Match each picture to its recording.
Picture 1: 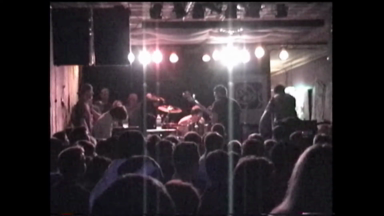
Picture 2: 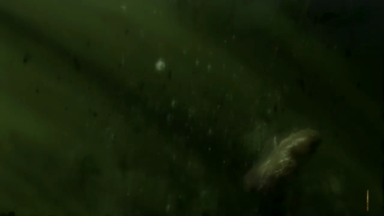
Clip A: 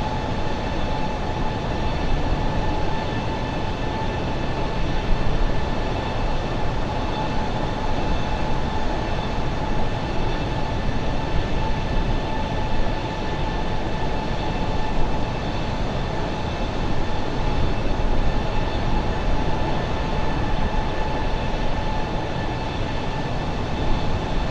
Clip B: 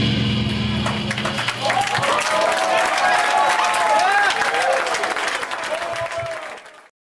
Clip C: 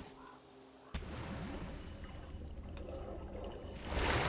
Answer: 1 B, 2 C